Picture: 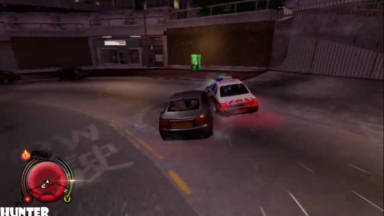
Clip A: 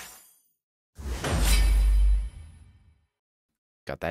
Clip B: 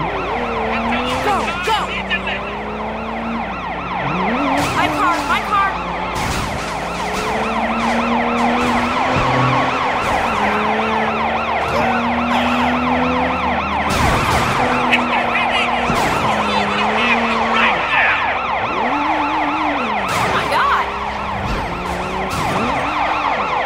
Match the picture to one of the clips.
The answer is B